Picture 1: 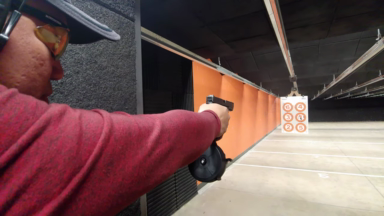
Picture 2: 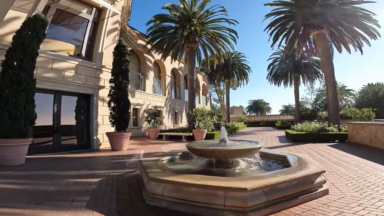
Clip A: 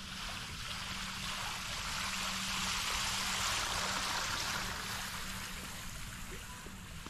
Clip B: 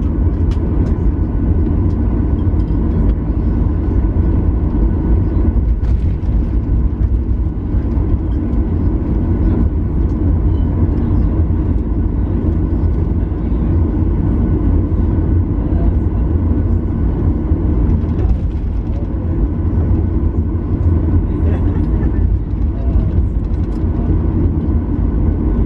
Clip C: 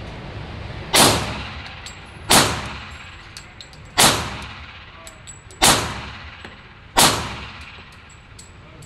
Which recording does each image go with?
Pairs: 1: C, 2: A